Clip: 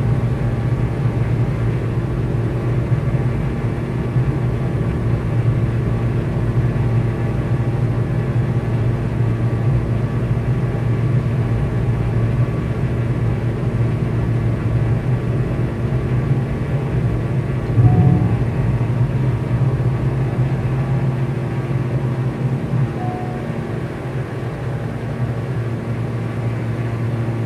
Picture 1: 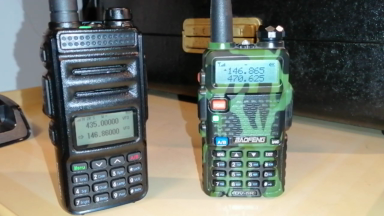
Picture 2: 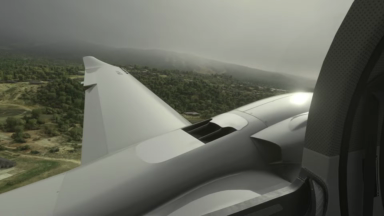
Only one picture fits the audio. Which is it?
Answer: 2